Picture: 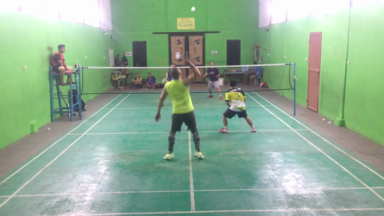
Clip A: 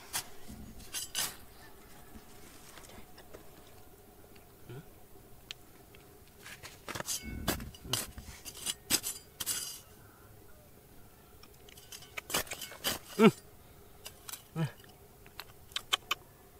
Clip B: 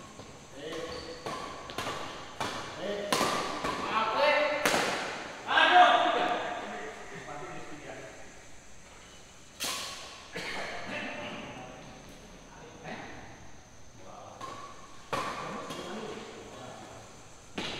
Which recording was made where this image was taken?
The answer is B